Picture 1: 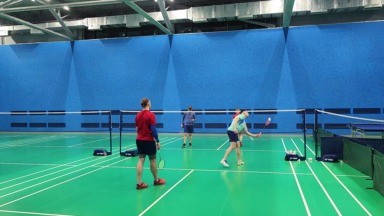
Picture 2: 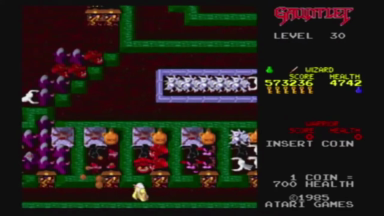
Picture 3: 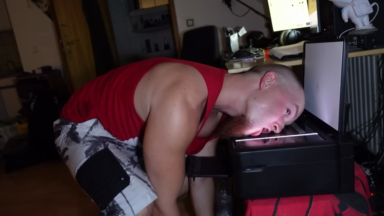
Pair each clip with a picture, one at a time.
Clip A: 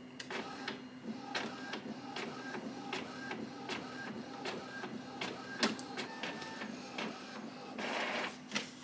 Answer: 3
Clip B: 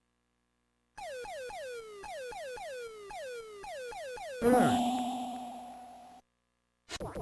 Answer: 2